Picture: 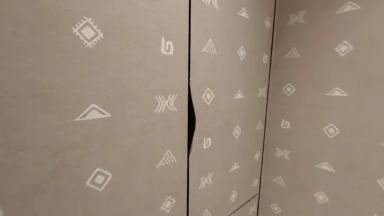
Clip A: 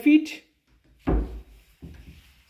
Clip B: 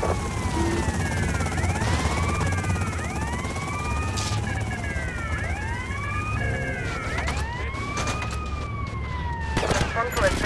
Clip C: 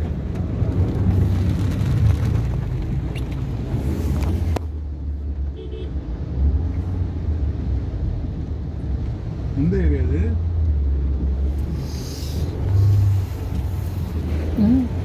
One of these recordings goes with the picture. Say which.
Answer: A